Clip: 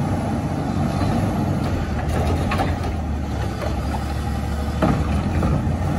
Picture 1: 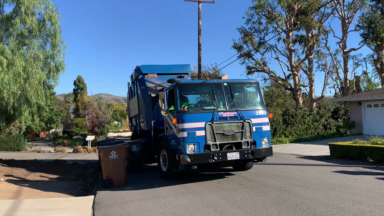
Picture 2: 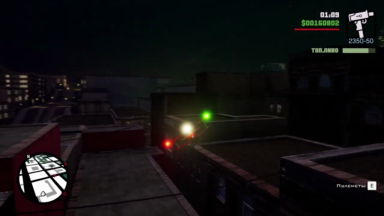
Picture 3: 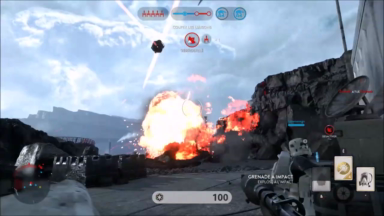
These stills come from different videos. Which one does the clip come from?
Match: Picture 1